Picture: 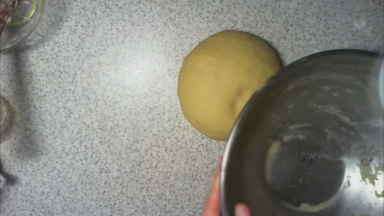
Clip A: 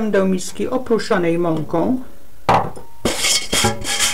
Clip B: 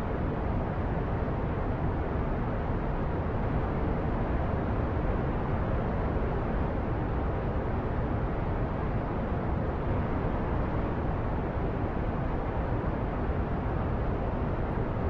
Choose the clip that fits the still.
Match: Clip A